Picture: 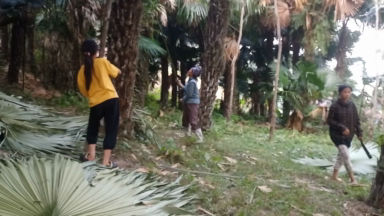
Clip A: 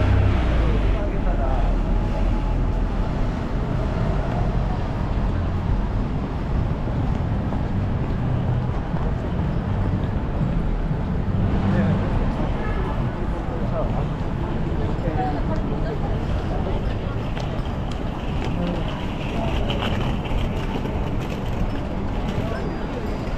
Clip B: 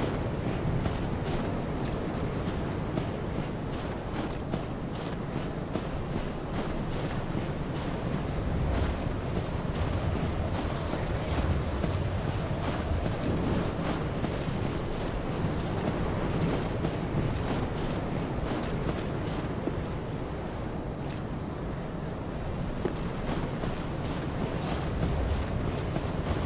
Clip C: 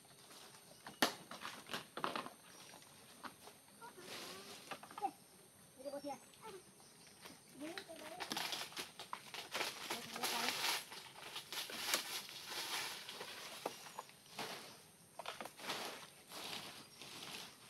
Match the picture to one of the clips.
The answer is C